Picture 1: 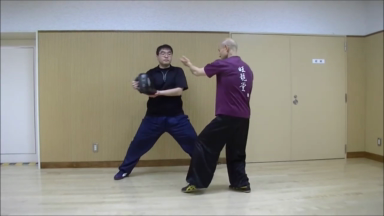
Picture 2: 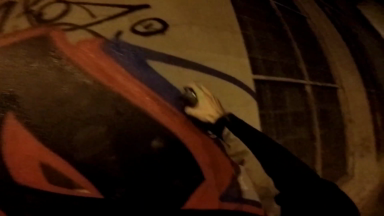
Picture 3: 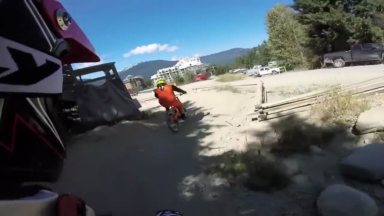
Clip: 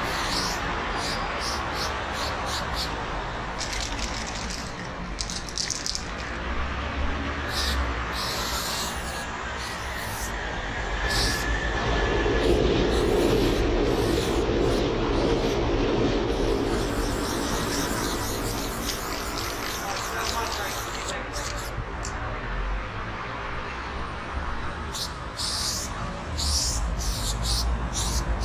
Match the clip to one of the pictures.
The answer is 2